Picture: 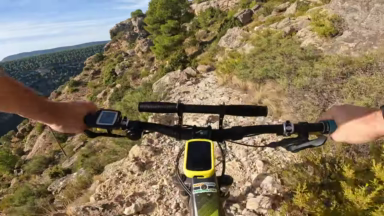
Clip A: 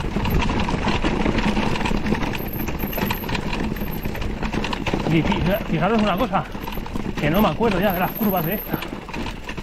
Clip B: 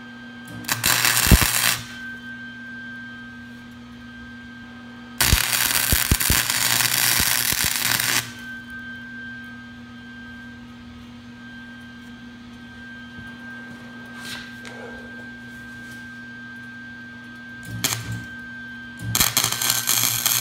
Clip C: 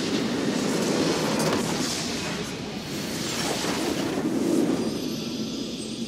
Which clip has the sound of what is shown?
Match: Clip A